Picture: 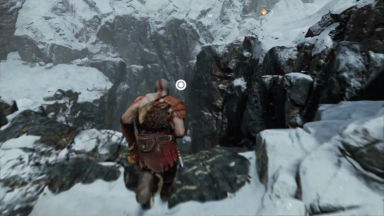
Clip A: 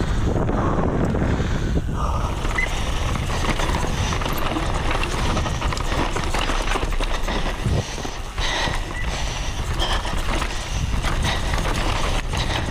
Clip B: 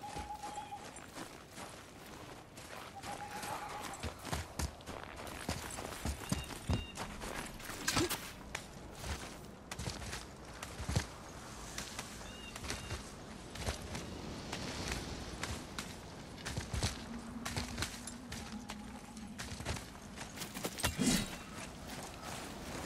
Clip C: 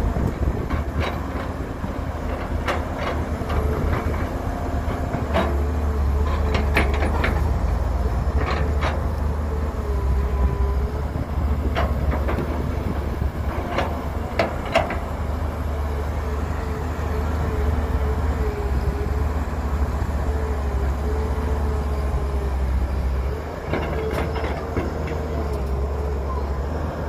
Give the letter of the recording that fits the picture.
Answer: B